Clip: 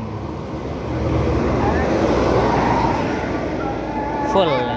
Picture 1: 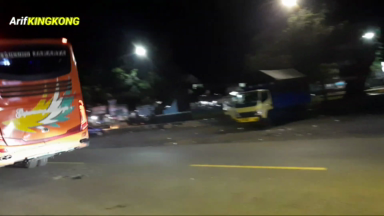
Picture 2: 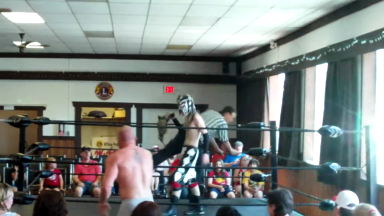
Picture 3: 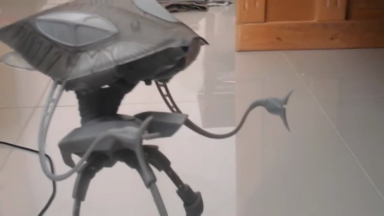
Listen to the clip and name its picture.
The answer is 1